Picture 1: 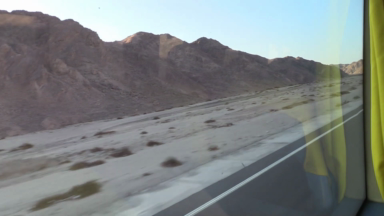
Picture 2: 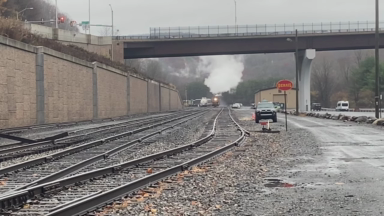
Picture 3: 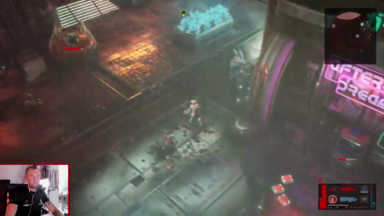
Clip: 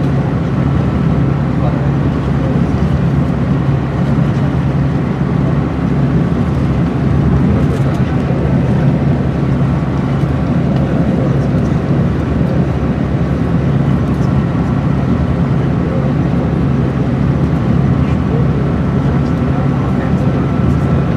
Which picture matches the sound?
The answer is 1